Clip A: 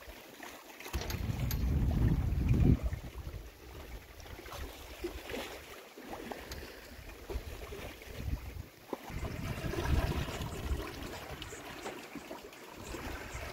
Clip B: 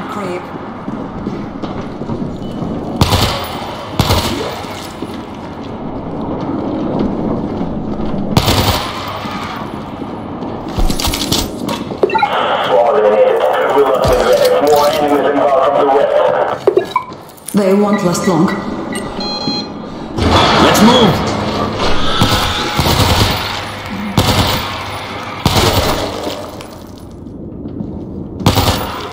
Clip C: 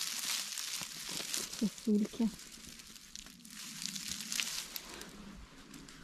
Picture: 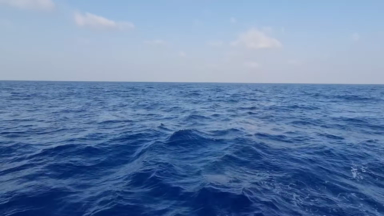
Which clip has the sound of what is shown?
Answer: A